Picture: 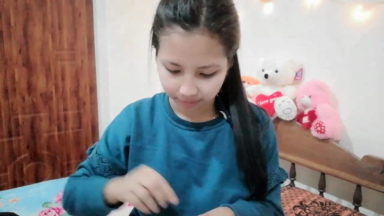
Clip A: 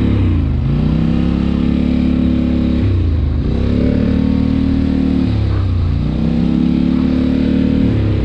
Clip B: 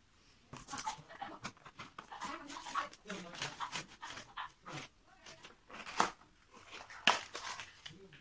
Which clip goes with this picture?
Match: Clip B